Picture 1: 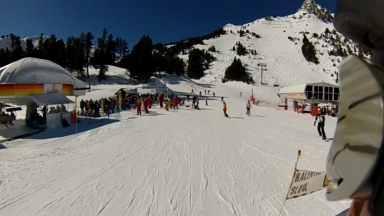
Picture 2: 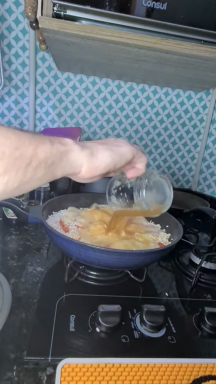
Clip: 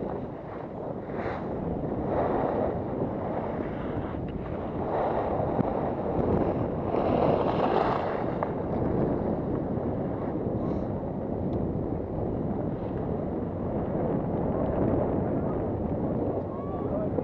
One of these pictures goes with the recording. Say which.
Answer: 1